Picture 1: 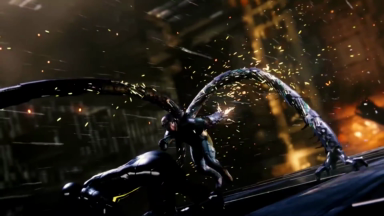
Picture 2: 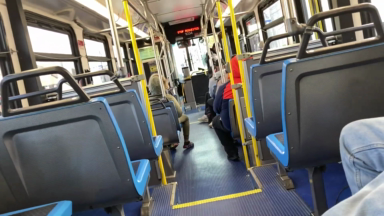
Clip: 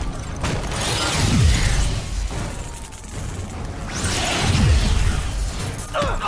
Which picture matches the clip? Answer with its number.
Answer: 1